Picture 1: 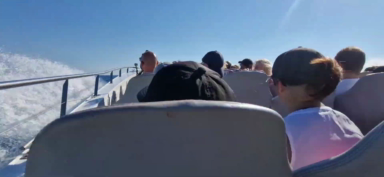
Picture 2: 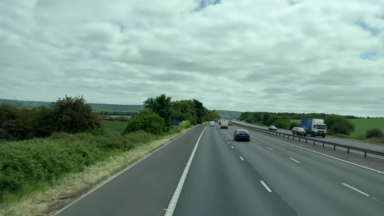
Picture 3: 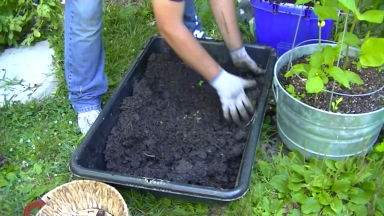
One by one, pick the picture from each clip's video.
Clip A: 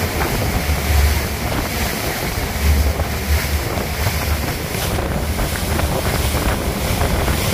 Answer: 1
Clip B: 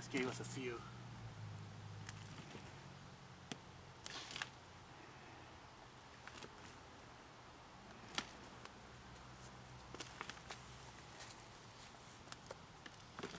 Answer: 3